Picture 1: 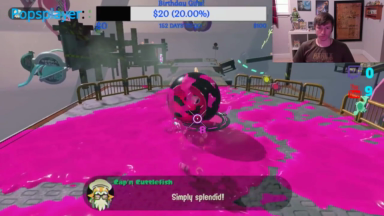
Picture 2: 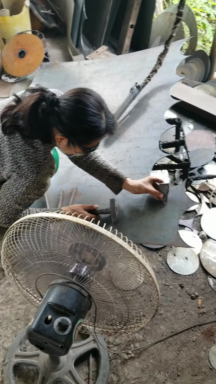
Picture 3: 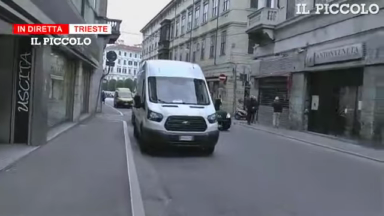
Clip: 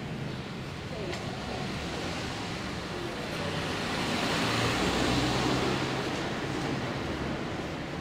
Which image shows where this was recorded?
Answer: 3